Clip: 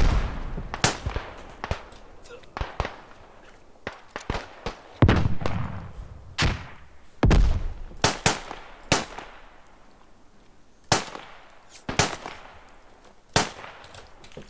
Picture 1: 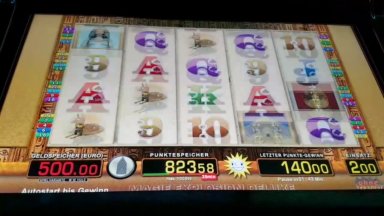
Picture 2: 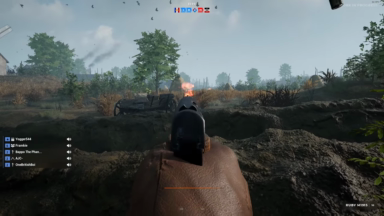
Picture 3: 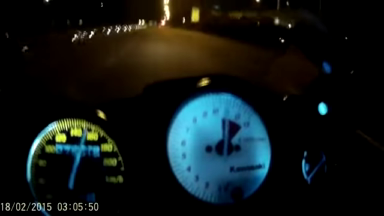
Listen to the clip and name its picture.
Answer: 2